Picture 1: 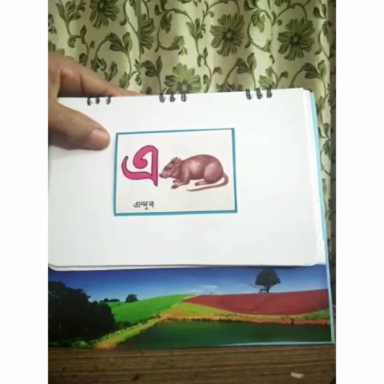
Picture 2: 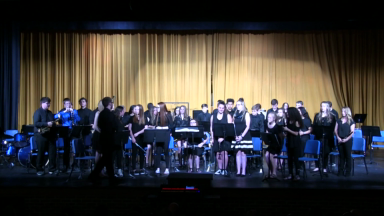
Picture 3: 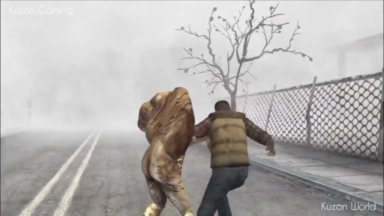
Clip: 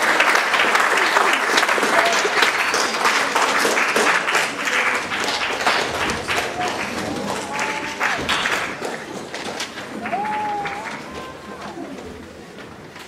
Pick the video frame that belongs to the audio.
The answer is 2